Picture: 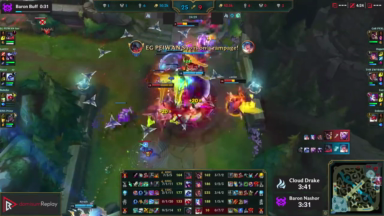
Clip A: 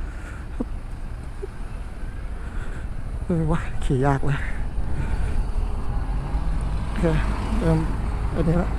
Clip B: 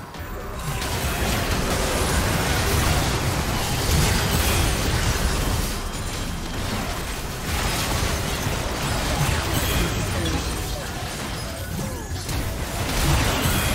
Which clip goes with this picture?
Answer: B